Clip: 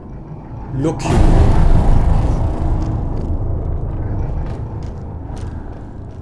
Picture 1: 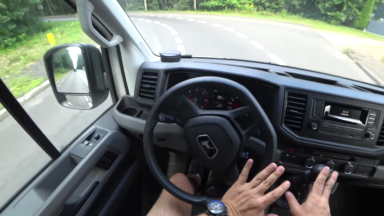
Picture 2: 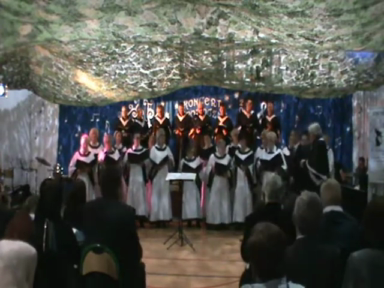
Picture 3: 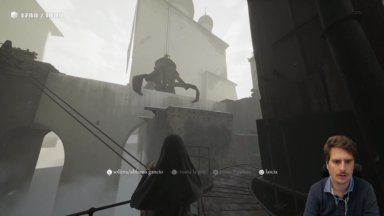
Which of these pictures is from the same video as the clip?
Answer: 3